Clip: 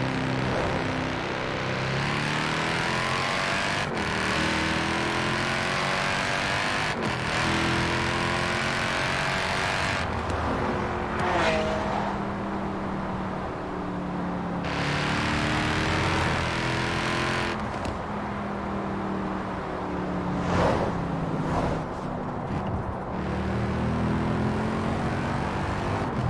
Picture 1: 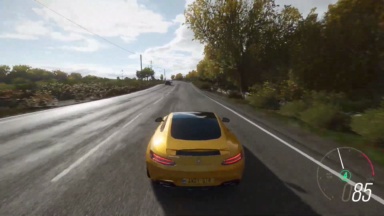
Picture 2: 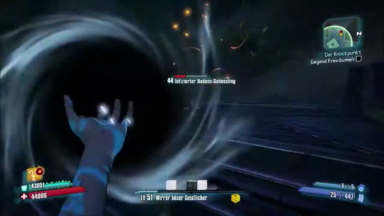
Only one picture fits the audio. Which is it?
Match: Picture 1